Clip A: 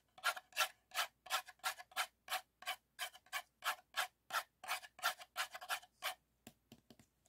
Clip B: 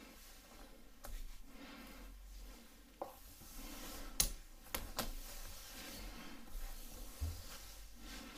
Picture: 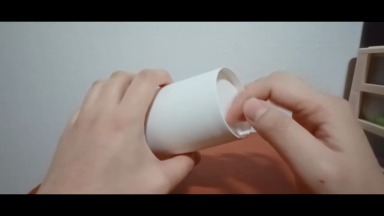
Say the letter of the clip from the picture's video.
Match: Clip A